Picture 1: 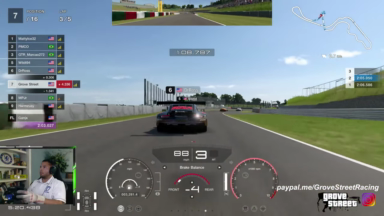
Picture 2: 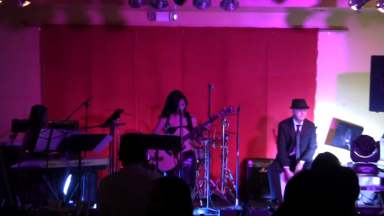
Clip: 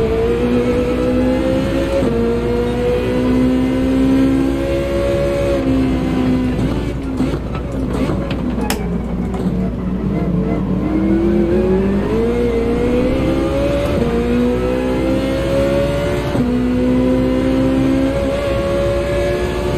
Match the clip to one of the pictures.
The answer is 1